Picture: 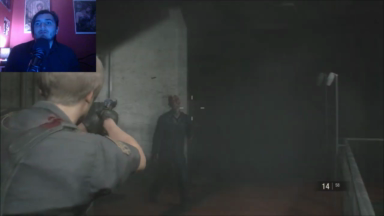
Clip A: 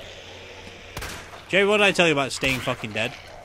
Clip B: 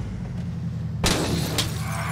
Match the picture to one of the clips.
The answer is A